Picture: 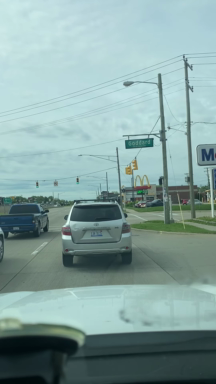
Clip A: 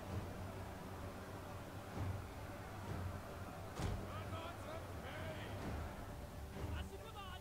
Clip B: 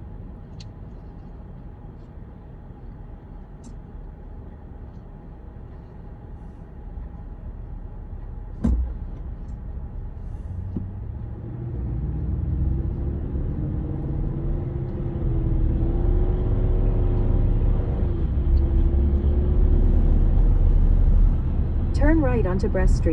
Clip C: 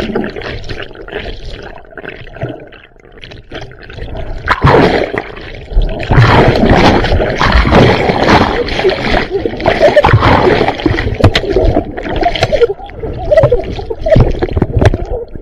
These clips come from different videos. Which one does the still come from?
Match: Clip B